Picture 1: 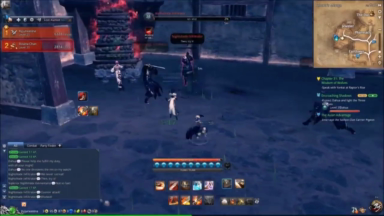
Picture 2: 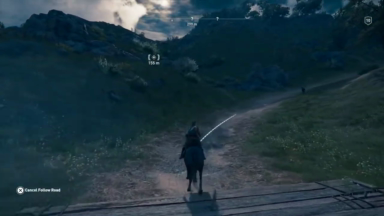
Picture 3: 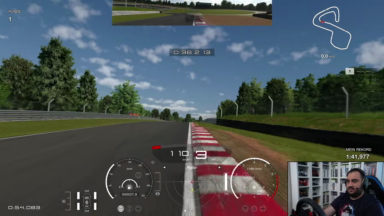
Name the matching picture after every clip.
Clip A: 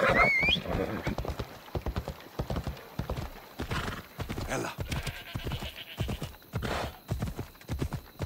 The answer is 2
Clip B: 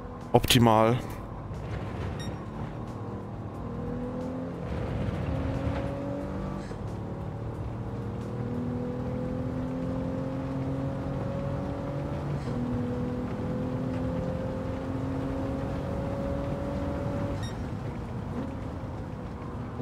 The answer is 3